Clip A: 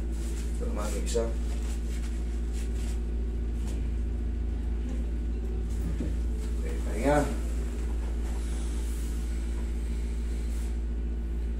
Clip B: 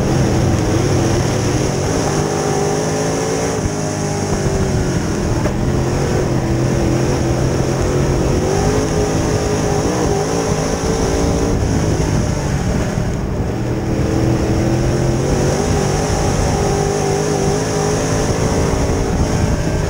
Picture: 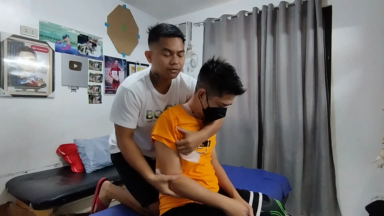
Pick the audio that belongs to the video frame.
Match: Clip A